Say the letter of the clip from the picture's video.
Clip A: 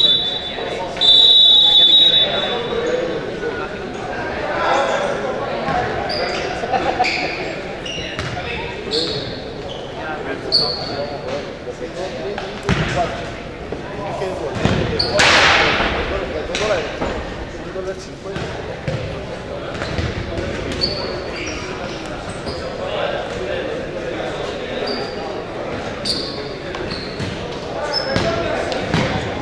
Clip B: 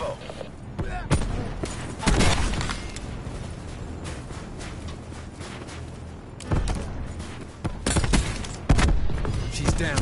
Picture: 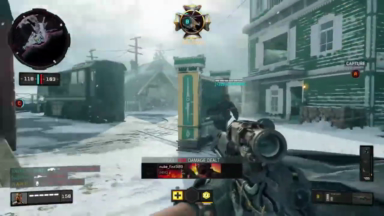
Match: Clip B